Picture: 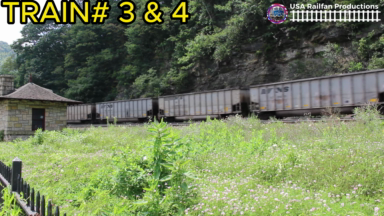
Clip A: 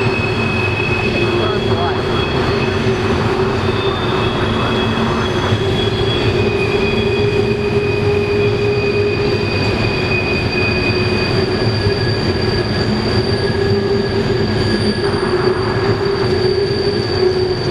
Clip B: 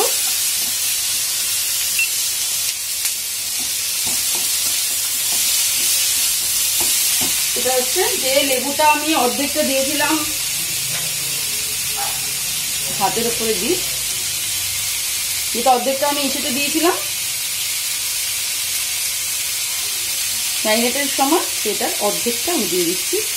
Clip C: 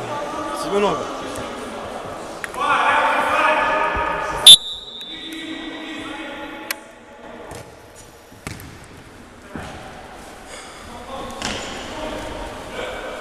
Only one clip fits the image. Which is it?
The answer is A